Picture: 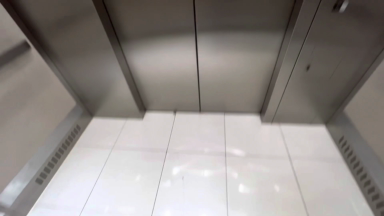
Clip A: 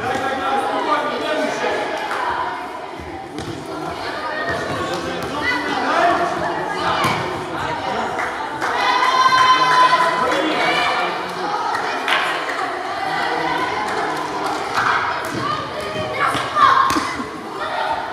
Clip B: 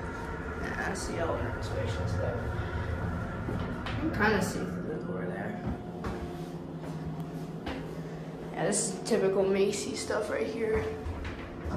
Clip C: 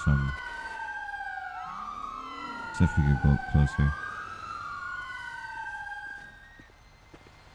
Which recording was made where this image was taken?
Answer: B